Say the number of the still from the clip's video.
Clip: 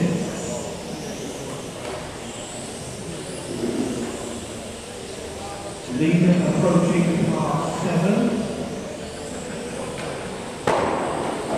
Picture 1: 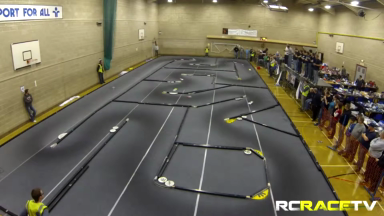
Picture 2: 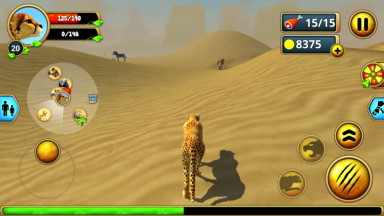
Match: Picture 1